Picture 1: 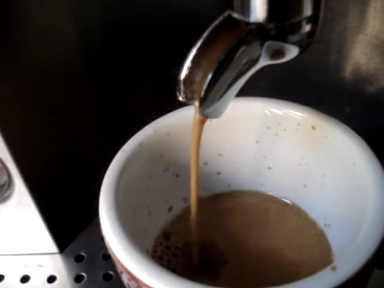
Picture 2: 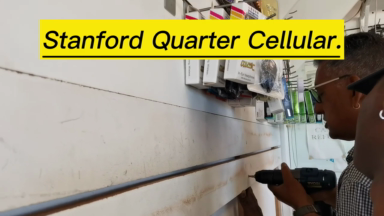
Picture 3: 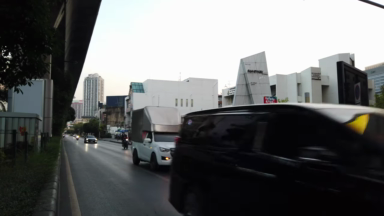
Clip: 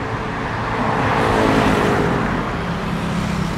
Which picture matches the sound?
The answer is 3